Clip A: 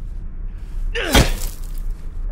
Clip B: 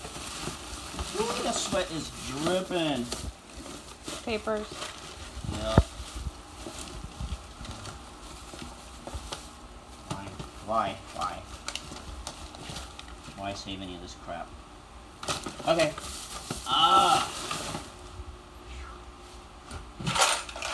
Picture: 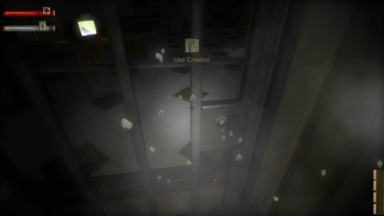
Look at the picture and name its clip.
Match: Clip A